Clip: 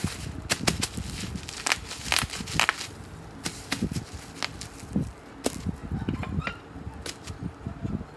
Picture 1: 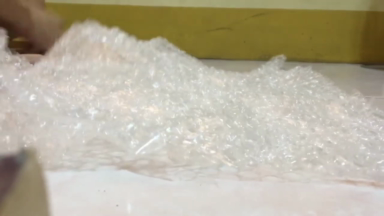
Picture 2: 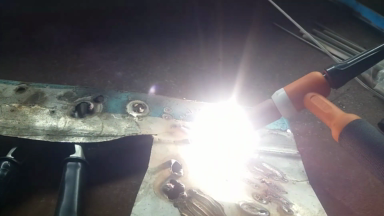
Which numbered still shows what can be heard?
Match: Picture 1